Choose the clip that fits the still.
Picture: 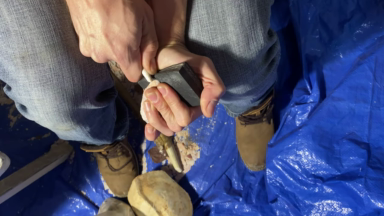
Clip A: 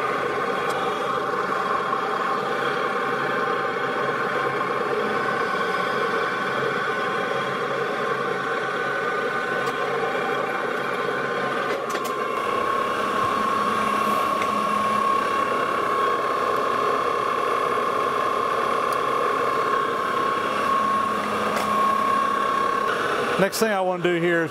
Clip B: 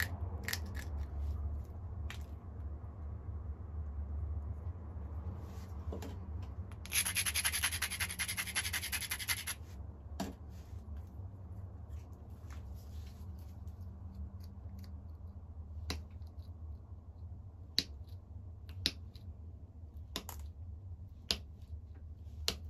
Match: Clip B